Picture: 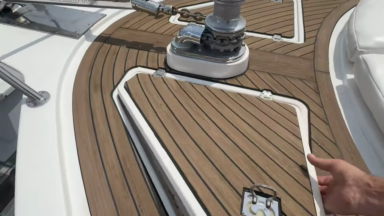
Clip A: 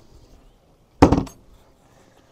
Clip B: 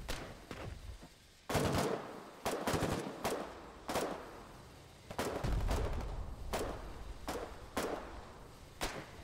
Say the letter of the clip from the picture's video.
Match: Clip A